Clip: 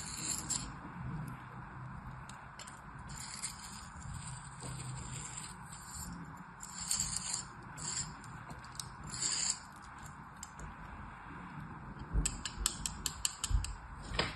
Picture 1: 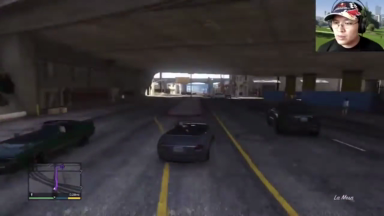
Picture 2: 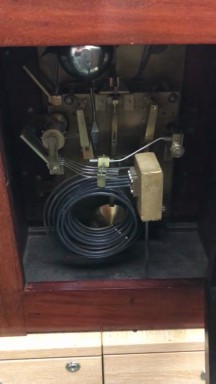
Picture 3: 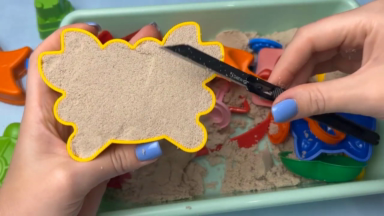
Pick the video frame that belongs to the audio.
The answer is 3